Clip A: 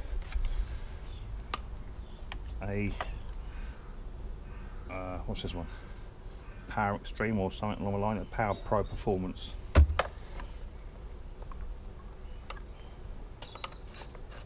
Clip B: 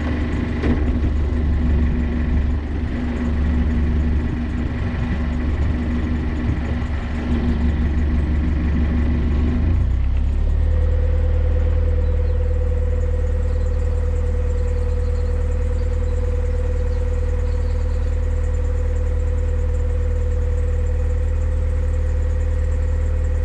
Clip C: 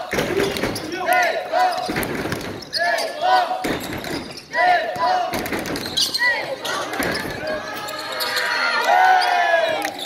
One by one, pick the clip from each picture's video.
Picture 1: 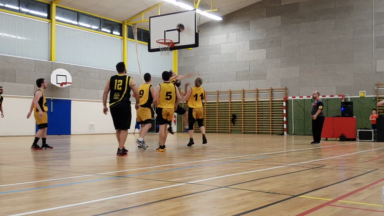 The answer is C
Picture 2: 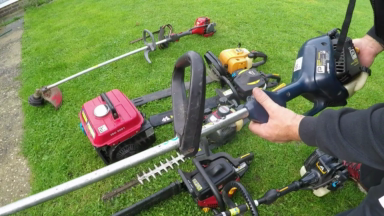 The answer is A